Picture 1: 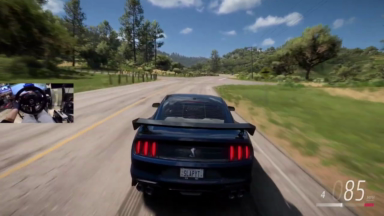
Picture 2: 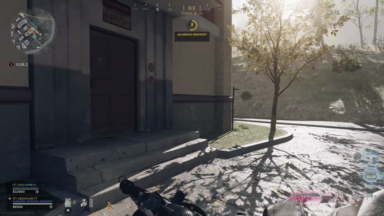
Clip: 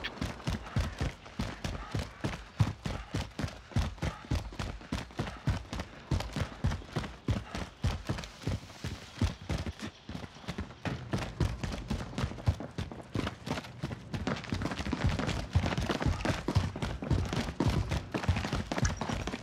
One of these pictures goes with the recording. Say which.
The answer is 2